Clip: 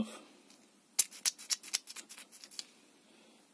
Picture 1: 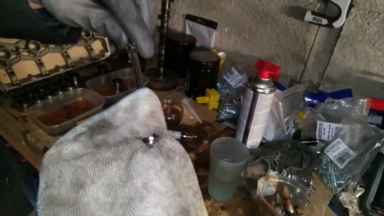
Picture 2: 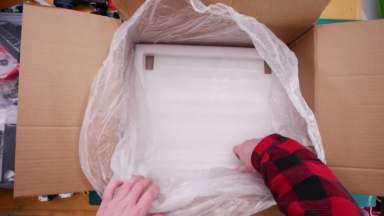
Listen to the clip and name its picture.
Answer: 1